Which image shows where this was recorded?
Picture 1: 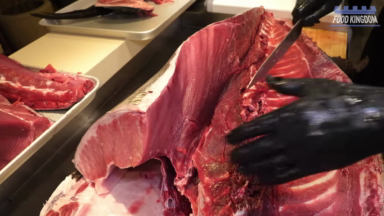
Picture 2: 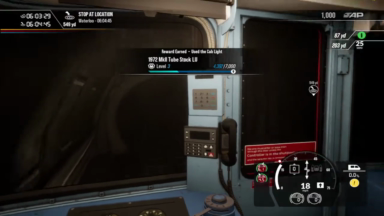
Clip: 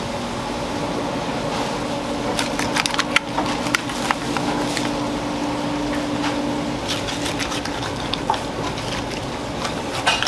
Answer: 1